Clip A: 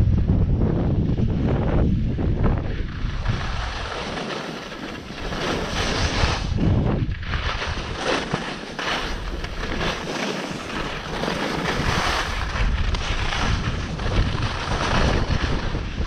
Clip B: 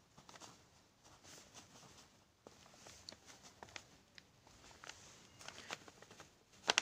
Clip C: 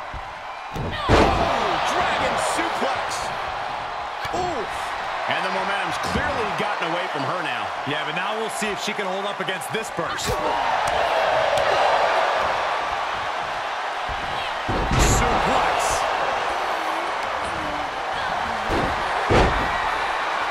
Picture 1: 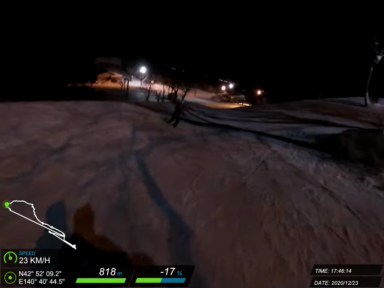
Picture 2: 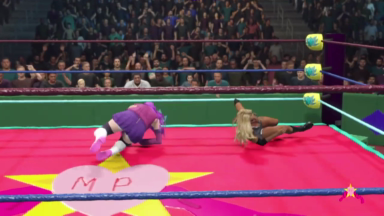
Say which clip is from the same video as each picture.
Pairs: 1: A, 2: C